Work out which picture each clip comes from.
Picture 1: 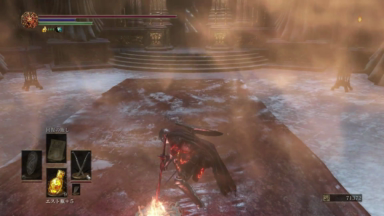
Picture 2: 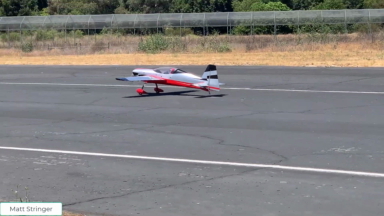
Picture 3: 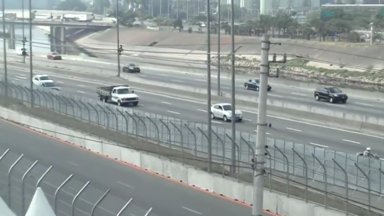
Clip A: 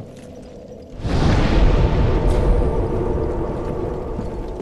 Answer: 1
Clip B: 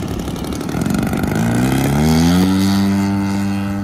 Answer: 2